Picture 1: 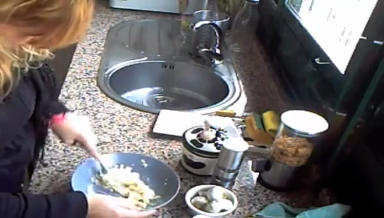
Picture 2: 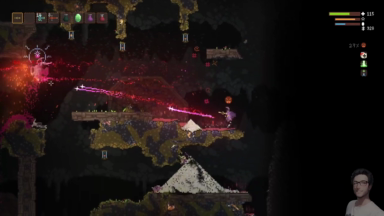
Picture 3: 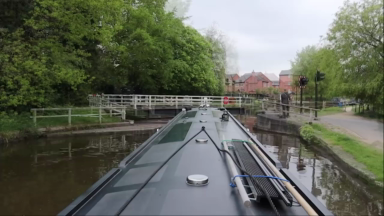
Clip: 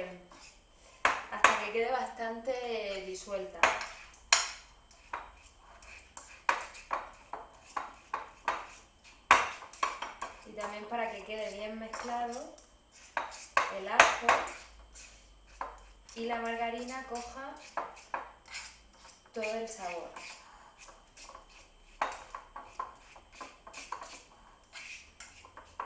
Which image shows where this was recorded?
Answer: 1